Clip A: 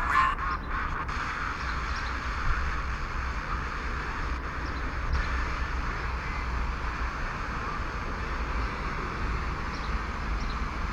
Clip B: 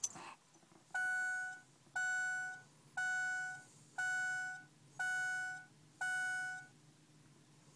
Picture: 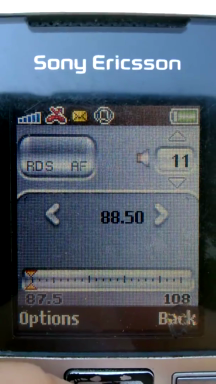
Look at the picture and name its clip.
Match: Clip A